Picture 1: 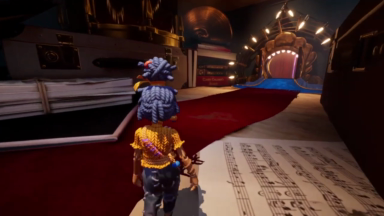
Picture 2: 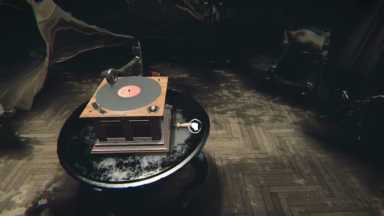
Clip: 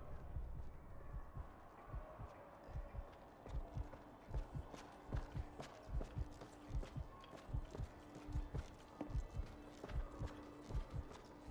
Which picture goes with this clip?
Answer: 1